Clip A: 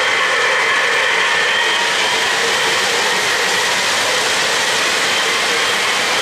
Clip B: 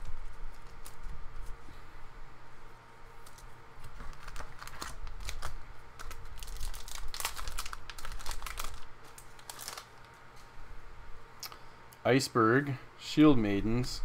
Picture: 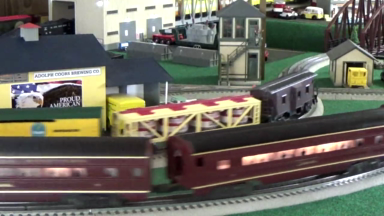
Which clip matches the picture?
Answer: A